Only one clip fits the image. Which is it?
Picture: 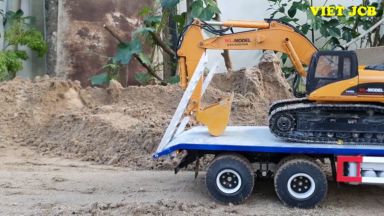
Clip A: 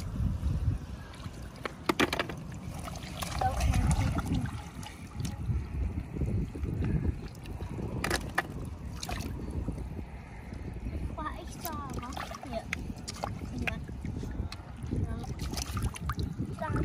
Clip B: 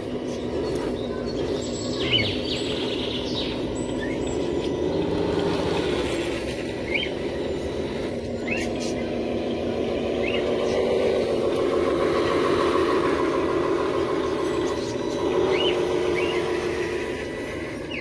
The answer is B